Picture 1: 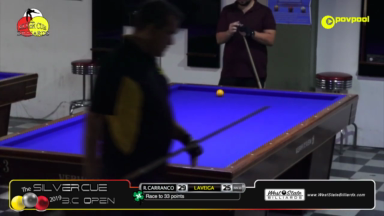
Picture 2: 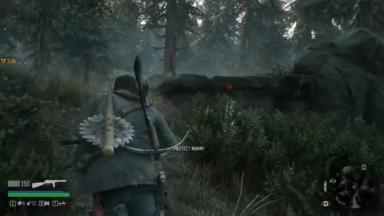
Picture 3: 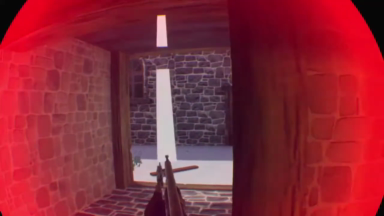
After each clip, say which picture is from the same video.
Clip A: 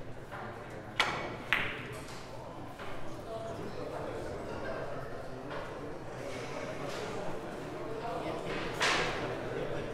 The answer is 1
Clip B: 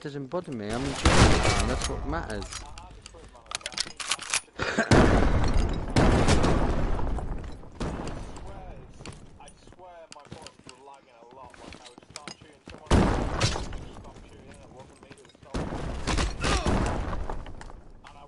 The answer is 3